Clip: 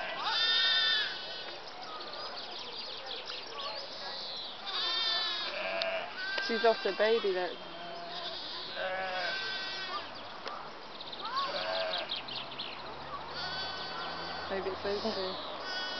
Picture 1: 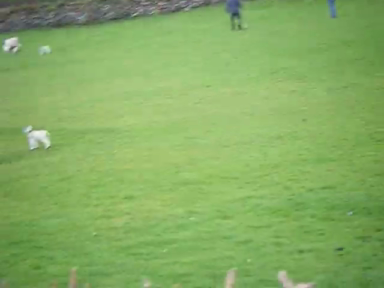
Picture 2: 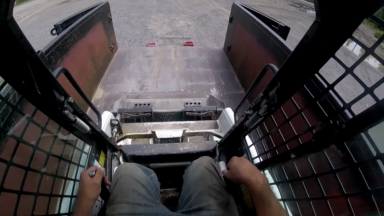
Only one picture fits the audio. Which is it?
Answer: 1